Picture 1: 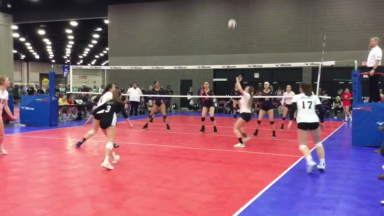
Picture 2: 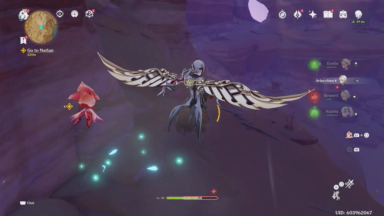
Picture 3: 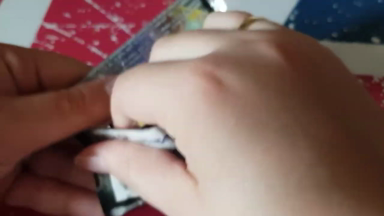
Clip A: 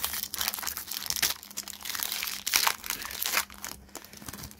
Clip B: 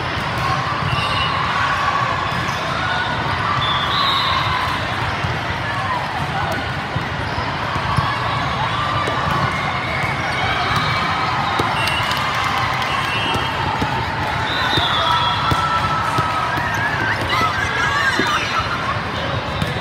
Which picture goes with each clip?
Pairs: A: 3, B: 1